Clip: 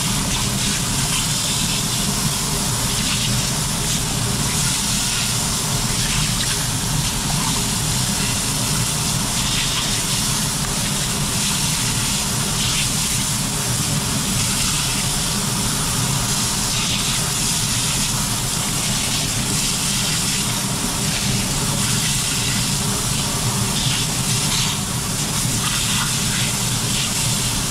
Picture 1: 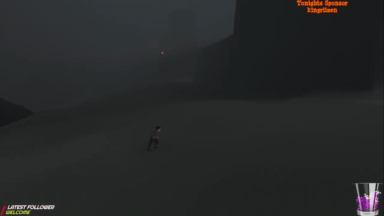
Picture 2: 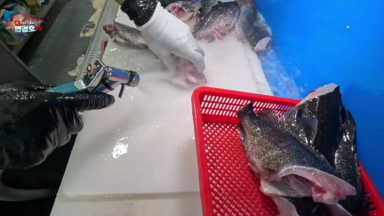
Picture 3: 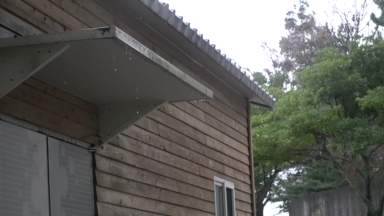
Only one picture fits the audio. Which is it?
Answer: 2